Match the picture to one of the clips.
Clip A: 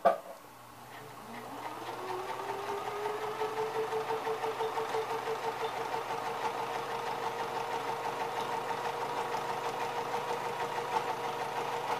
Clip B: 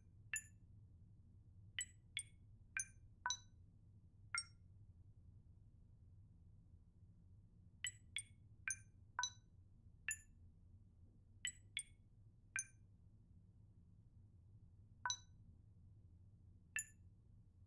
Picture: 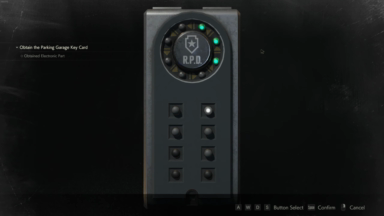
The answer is B